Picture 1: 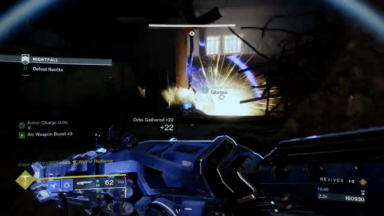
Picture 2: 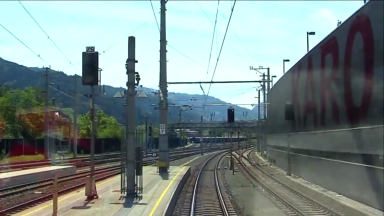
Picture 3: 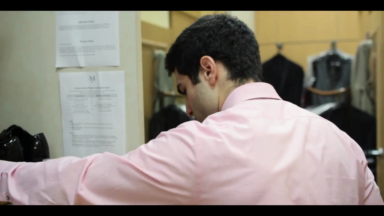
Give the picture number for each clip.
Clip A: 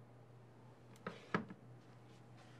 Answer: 3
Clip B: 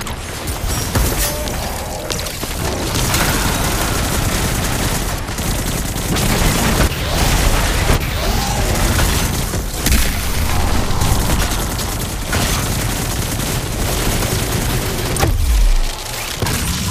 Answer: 1